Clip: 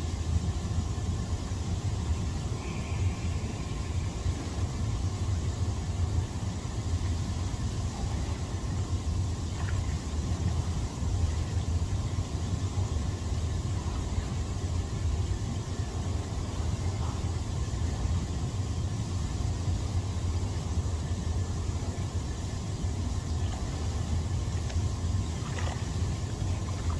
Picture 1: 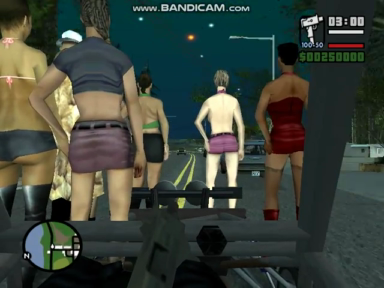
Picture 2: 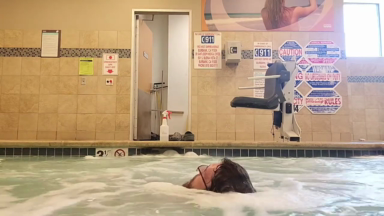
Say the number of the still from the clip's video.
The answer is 2